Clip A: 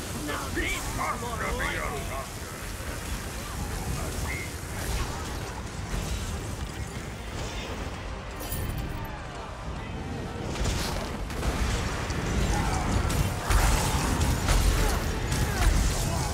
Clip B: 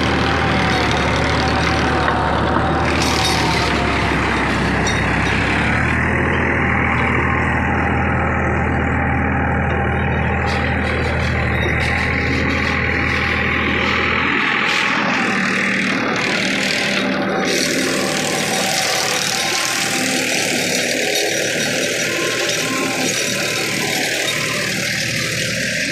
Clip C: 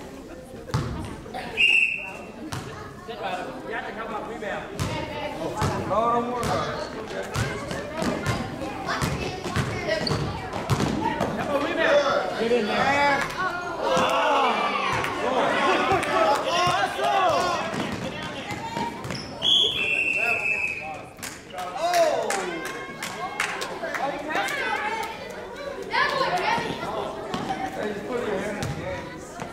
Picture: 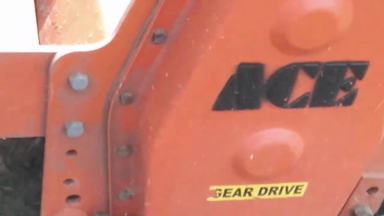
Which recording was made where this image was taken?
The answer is B